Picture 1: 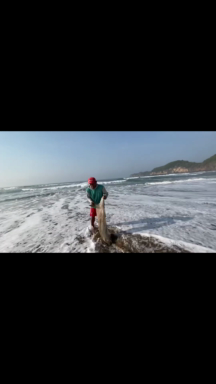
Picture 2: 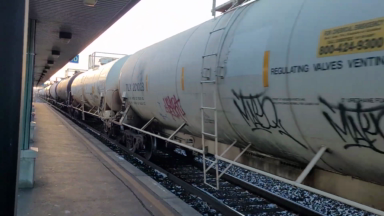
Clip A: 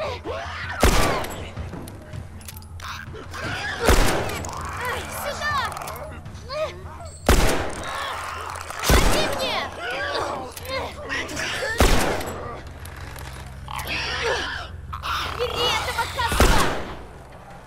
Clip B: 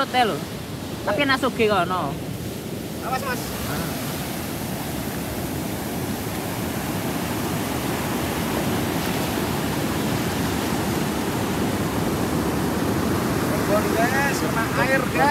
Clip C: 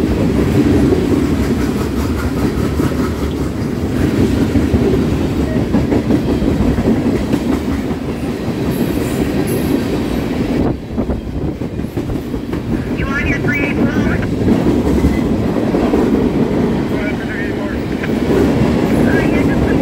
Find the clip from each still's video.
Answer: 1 B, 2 C